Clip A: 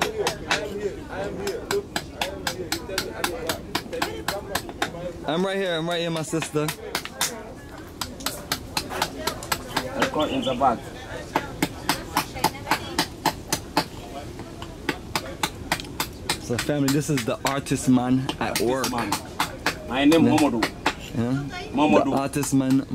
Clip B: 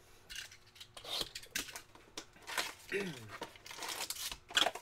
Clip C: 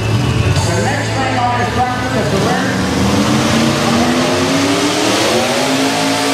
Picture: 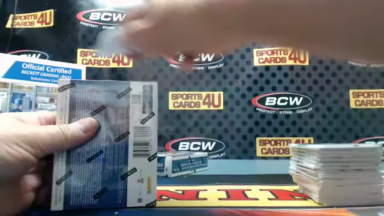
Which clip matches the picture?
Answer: B